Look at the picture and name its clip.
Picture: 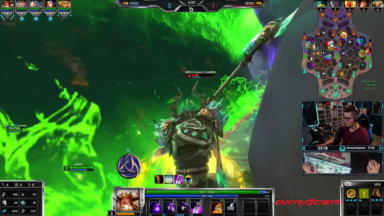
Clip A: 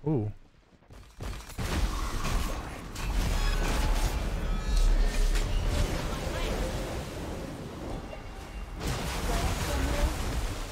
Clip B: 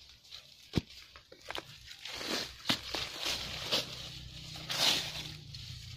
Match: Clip A